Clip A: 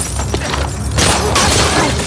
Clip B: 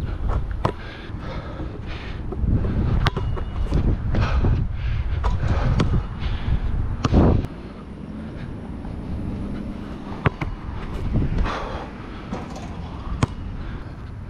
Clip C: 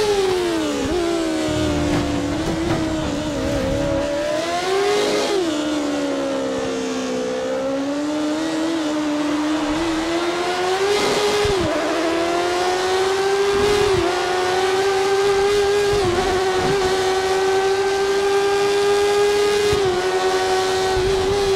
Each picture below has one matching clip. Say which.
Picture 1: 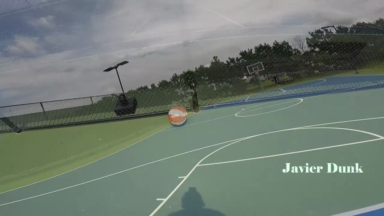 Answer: B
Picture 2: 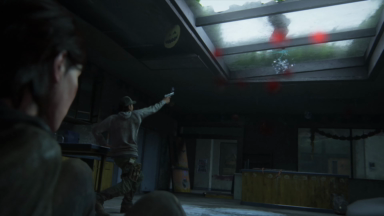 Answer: A